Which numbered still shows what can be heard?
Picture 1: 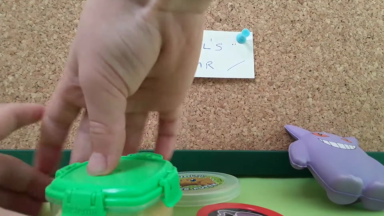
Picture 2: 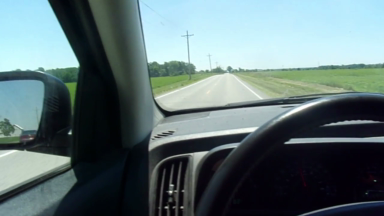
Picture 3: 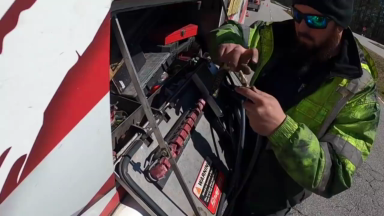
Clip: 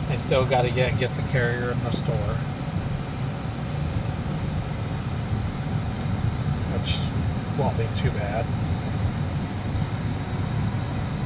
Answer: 2